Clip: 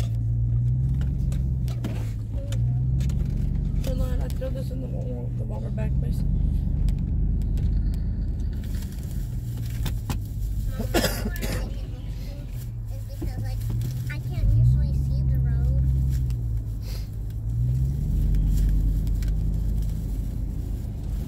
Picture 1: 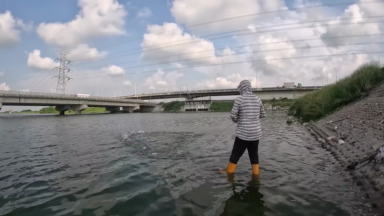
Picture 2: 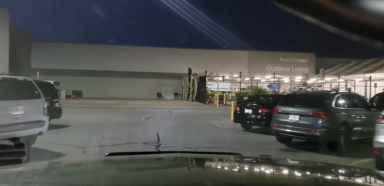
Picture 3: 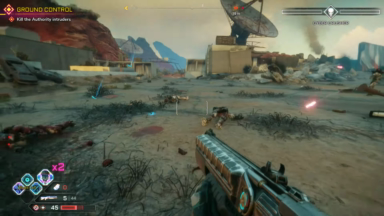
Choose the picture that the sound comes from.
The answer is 2